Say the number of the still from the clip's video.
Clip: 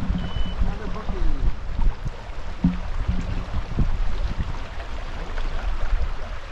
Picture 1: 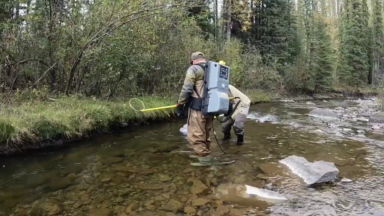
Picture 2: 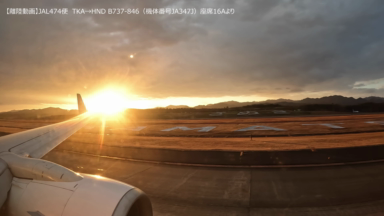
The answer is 1